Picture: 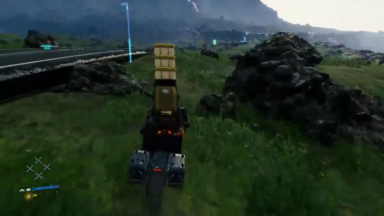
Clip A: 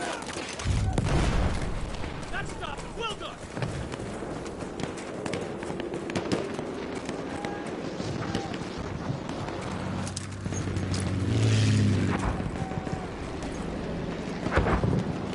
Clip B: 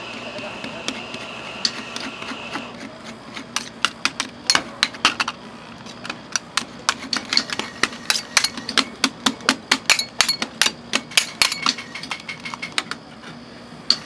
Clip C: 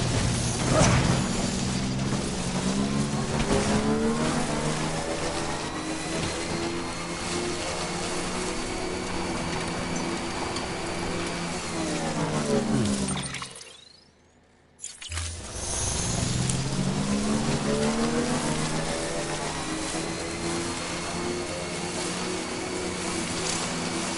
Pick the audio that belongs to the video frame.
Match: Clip C